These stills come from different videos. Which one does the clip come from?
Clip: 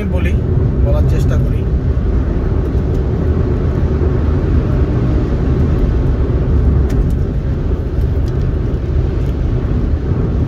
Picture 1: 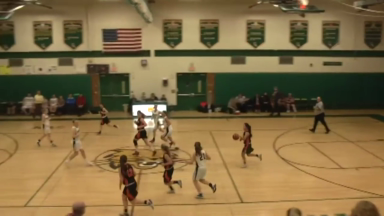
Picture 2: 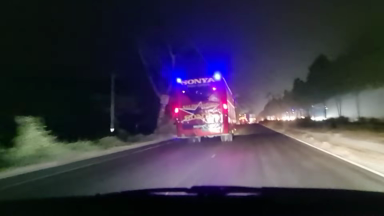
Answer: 2